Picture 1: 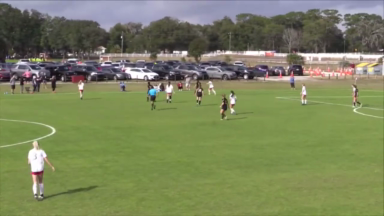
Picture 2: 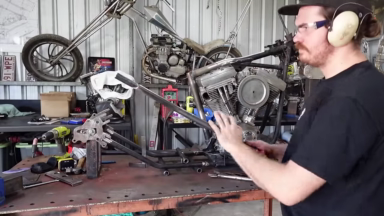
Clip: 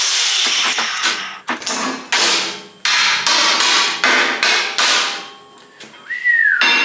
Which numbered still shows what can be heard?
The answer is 2